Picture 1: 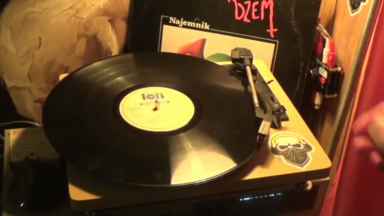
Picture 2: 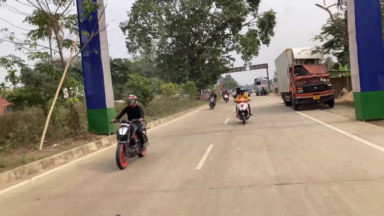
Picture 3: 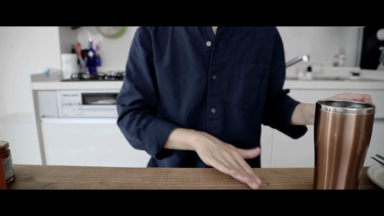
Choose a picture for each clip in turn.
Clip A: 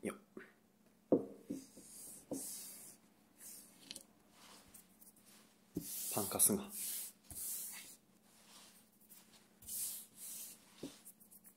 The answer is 3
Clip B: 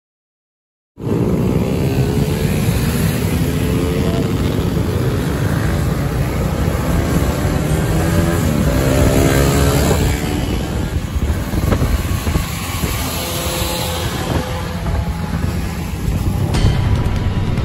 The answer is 2